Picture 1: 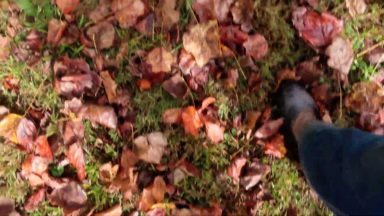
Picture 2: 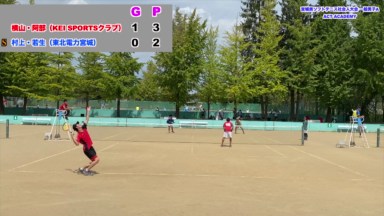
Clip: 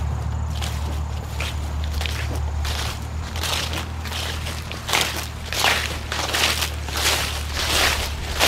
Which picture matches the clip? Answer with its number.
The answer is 1